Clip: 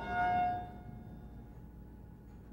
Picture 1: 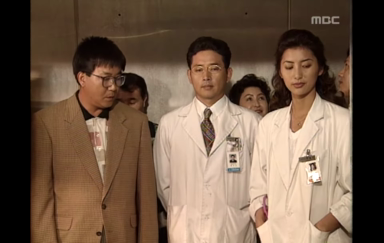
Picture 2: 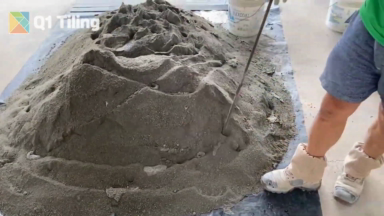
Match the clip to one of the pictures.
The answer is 1